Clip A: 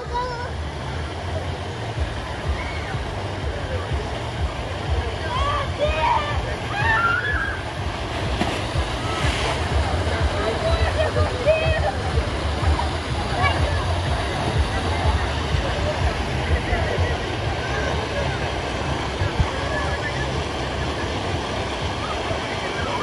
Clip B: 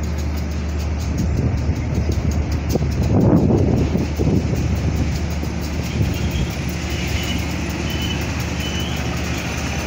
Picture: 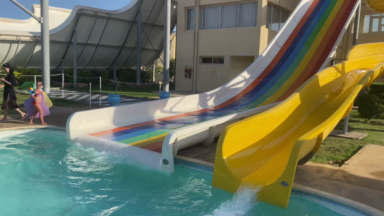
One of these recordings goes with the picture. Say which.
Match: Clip A